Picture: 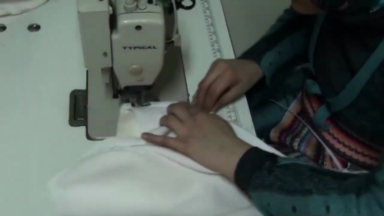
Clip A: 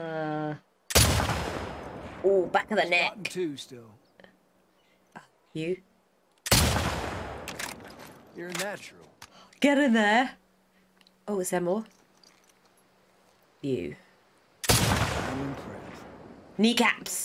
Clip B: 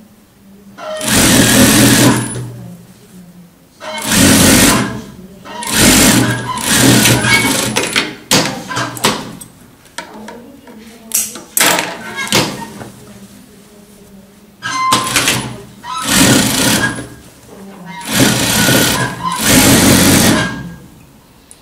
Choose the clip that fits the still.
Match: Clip B